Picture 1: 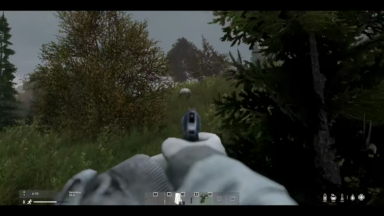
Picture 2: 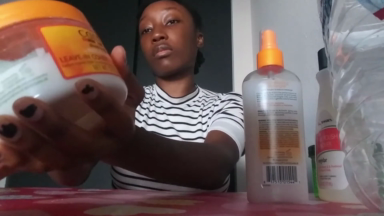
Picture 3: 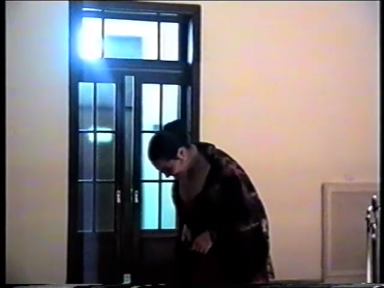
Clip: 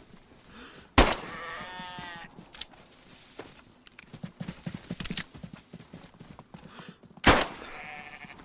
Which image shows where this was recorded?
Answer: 1